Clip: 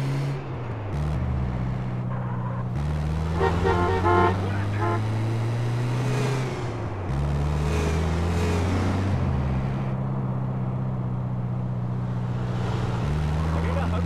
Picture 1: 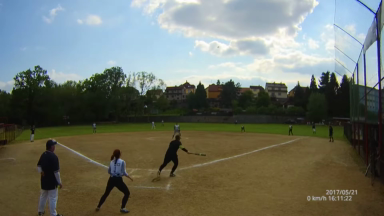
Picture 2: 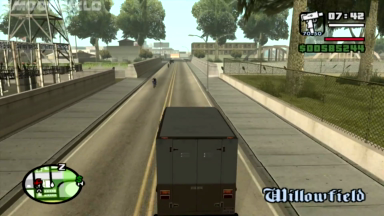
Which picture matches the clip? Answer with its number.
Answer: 2